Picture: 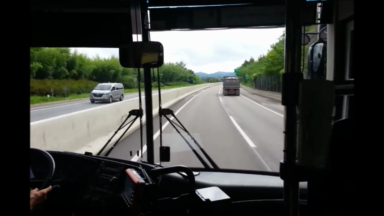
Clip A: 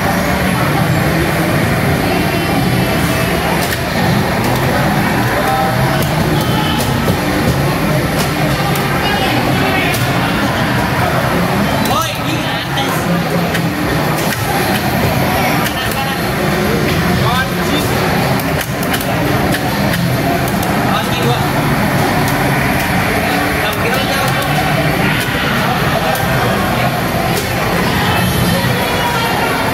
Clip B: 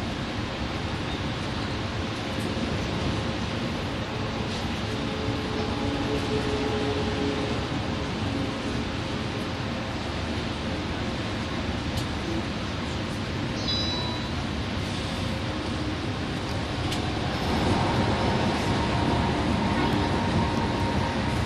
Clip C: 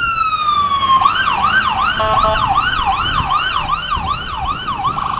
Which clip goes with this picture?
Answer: B